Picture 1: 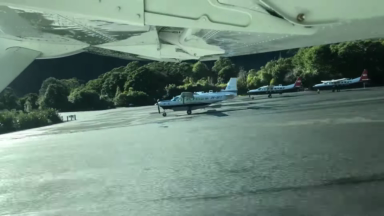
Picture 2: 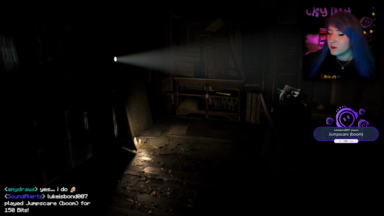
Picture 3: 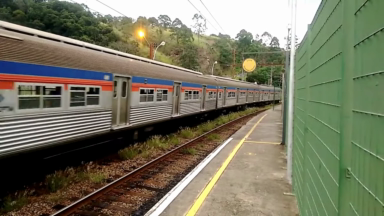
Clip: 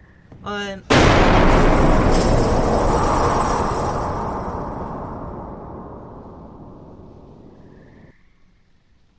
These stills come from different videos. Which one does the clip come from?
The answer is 2